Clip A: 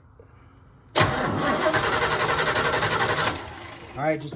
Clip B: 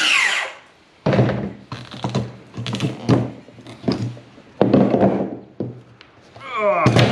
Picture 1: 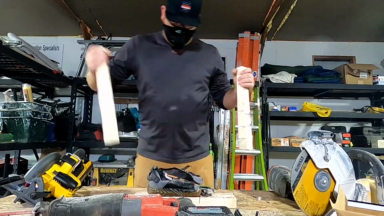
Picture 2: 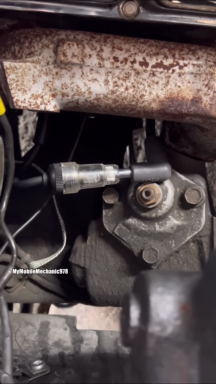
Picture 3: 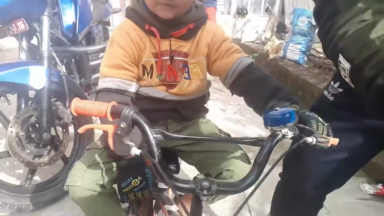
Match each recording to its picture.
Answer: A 2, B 1